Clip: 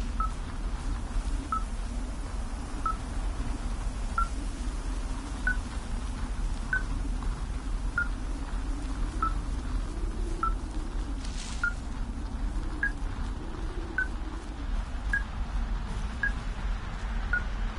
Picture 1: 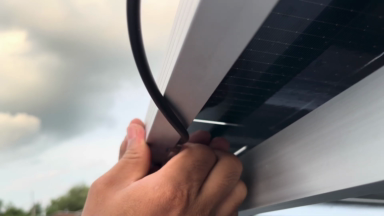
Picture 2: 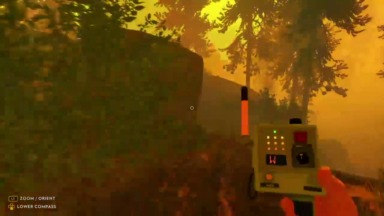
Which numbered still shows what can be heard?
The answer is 2